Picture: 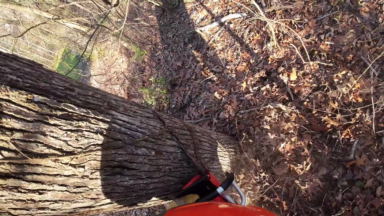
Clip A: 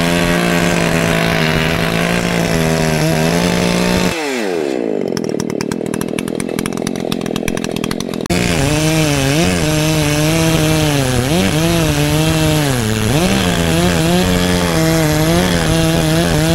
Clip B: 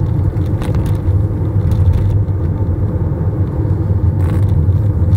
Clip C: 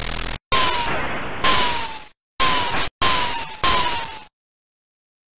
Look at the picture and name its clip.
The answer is A